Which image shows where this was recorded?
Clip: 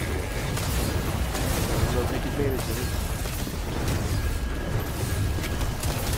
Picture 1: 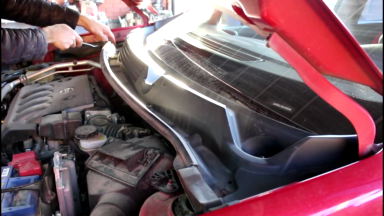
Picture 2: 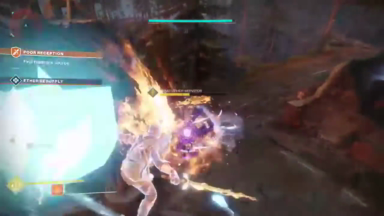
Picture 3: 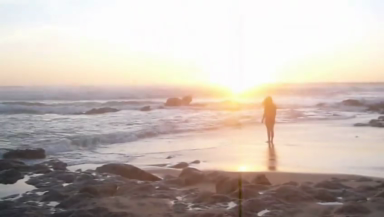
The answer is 2